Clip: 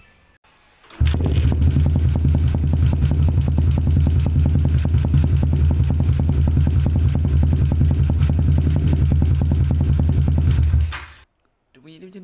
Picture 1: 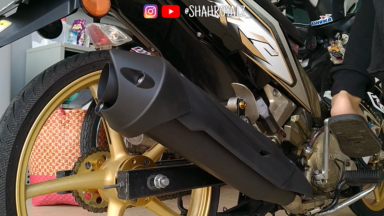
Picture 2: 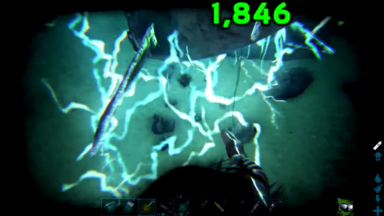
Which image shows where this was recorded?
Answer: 1